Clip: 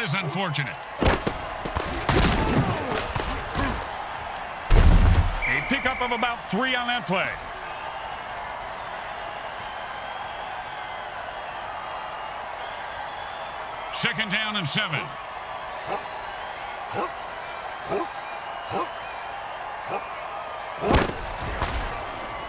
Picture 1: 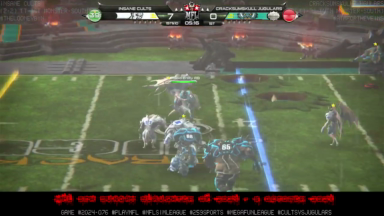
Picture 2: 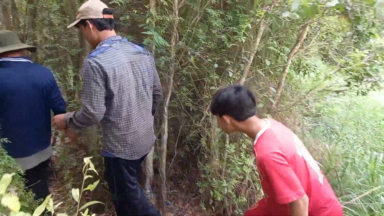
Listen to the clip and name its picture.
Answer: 1